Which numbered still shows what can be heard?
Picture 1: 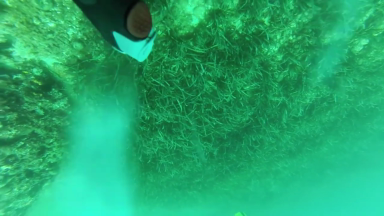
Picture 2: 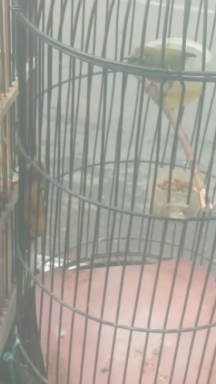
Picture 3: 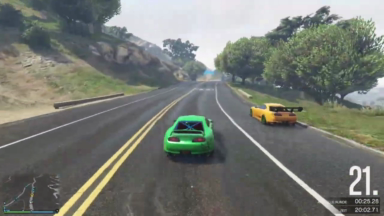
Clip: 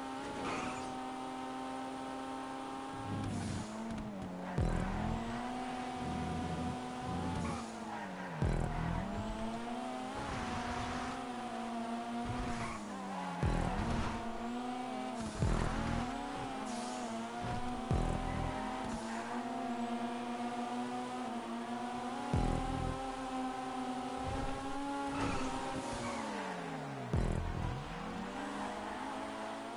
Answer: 3